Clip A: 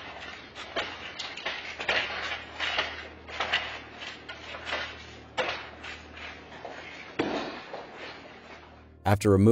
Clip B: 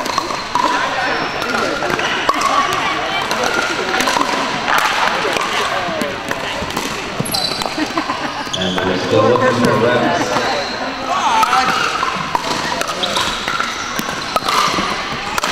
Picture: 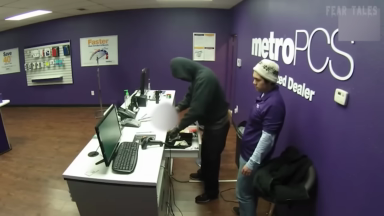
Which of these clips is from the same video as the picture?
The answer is A